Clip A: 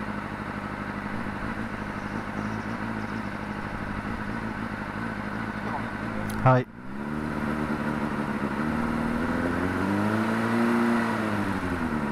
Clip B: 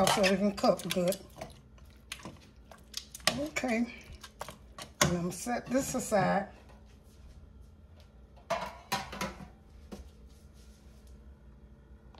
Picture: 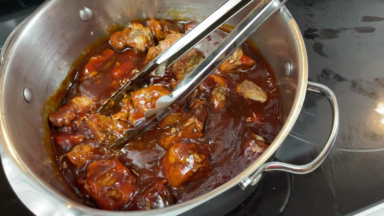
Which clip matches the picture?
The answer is B